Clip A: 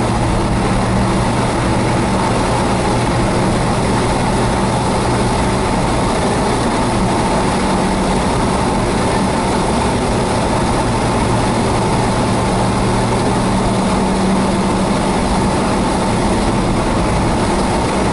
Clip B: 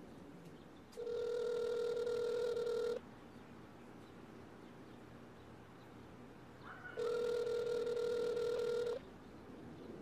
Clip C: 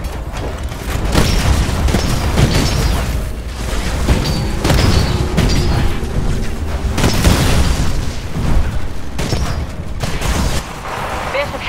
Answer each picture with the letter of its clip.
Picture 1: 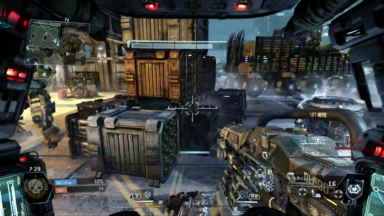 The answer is C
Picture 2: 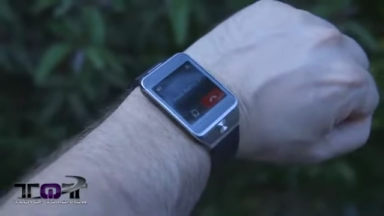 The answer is B